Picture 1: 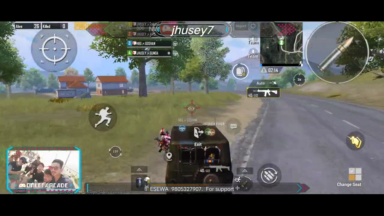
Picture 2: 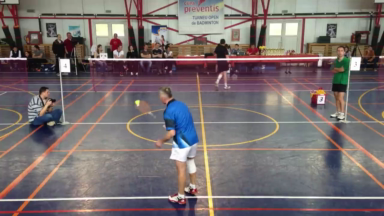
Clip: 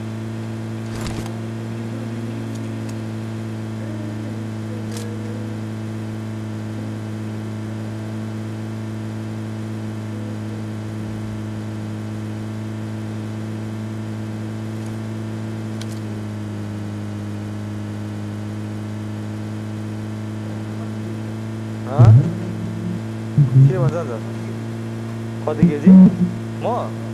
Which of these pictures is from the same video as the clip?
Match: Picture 1